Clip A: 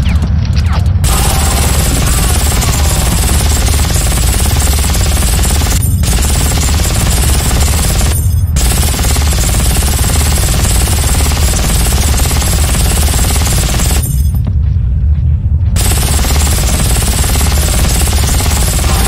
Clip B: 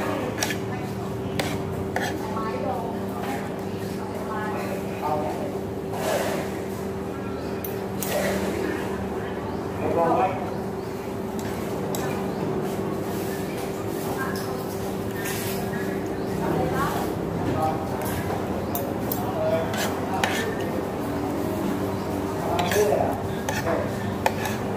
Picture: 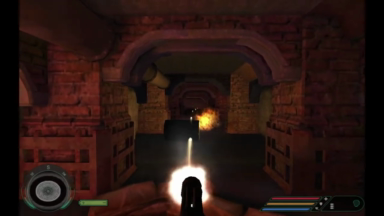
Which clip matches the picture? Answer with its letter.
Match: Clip A